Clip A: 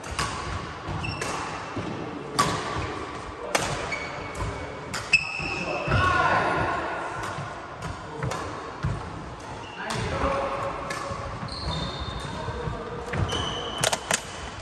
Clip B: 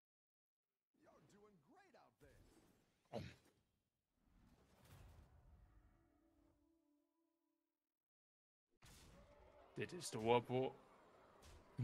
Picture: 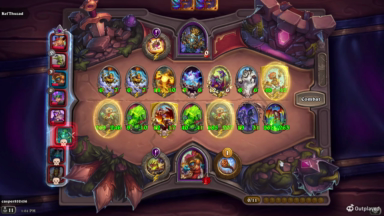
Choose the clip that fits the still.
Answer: B